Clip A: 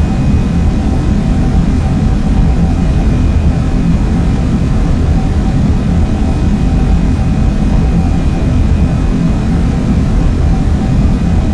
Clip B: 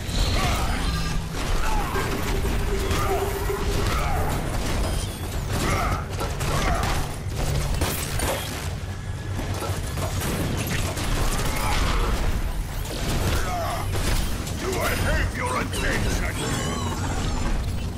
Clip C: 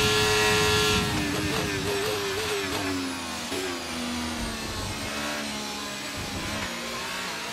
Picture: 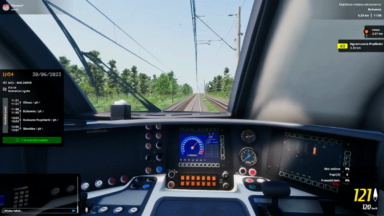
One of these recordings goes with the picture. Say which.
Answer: A